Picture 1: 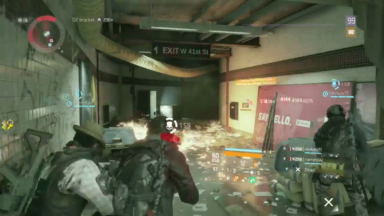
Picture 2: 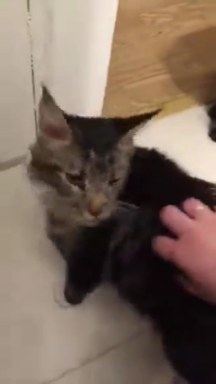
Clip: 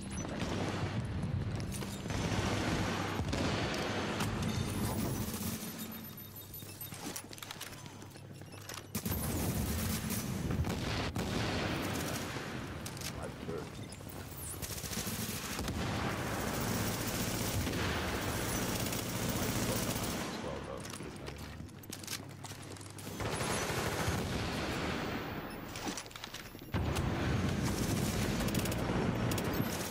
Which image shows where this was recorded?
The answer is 1